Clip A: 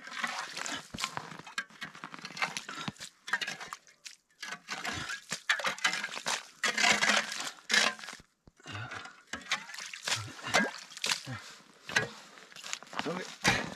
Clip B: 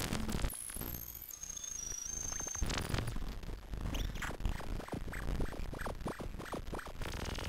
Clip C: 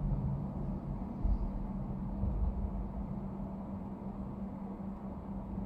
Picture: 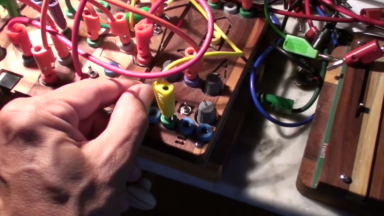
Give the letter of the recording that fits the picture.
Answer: B